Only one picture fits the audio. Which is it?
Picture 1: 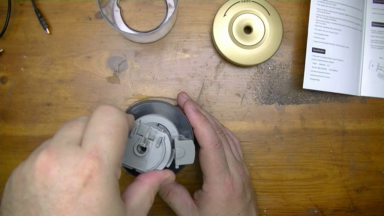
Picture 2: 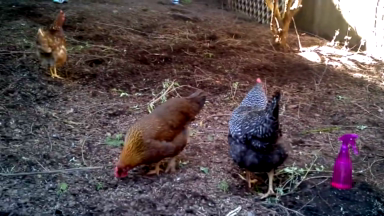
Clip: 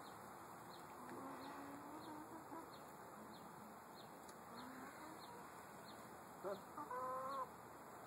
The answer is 2